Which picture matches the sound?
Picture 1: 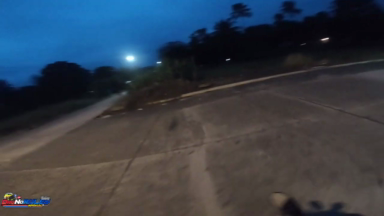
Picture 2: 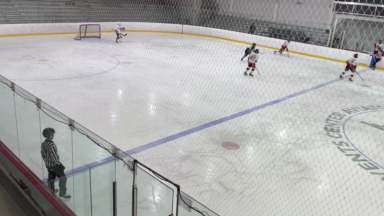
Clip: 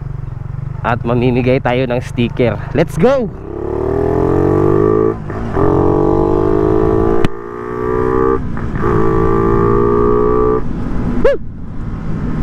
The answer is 1